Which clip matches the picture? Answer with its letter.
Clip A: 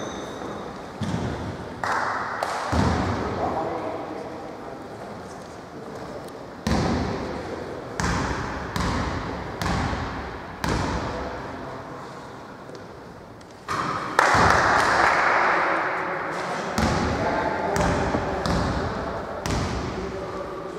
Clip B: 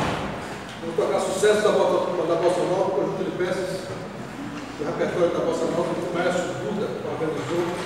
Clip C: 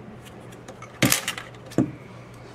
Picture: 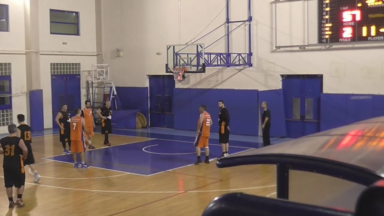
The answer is A